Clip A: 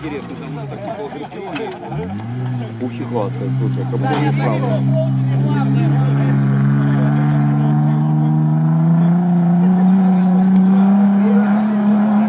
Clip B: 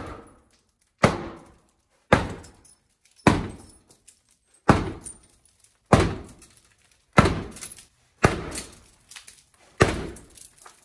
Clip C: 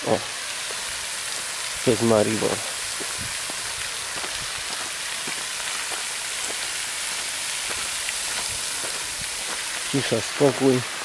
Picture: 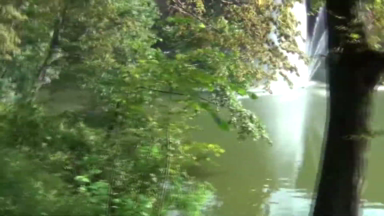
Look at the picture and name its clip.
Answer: C